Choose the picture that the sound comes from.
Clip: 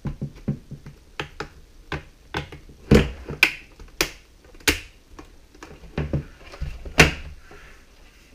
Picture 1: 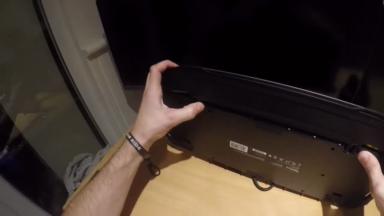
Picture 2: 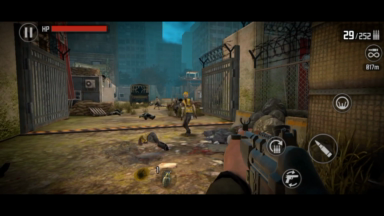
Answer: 1